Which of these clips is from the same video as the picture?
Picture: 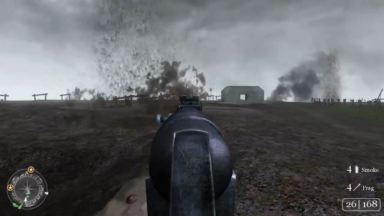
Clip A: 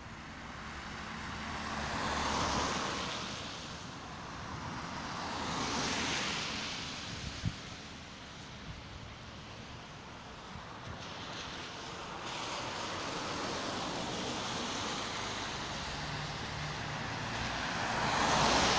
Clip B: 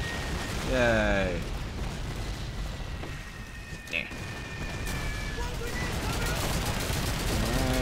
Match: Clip B